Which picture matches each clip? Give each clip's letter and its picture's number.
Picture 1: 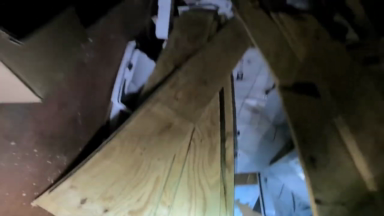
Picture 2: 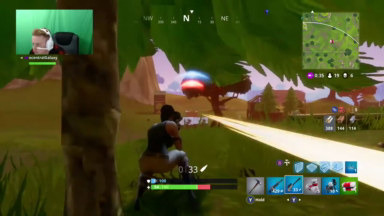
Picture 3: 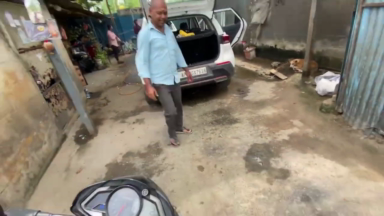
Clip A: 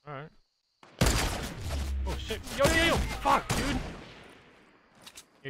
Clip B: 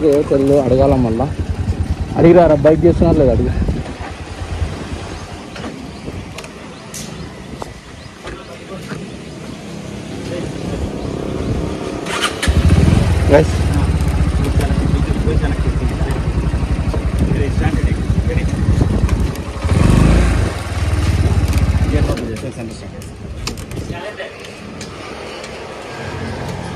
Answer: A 2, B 3